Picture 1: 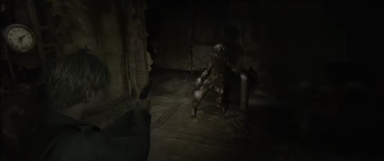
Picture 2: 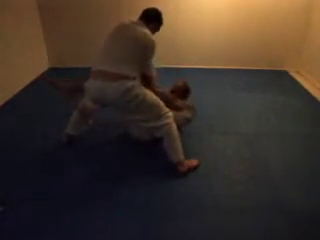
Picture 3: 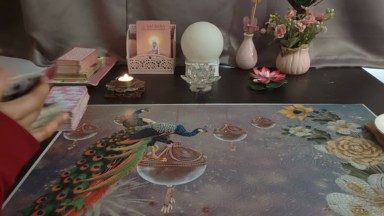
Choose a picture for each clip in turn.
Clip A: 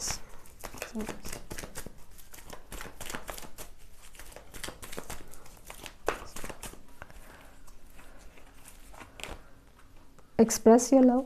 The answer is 3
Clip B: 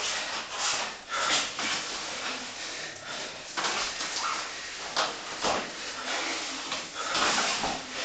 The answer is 2